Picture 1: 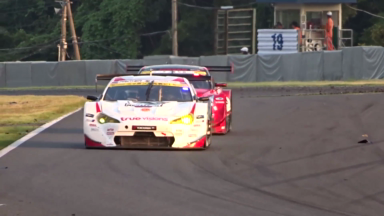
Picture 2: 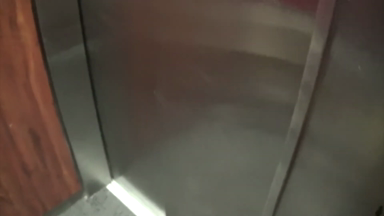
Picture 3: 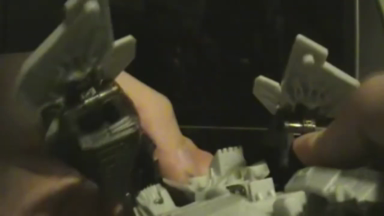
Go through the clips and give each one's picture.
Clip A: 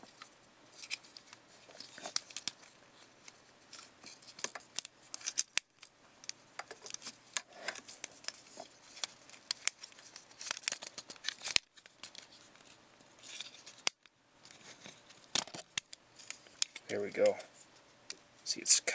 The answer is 3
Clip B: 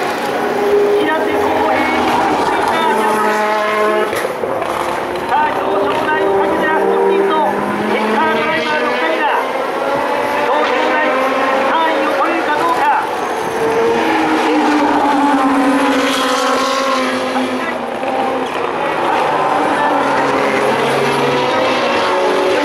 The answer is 1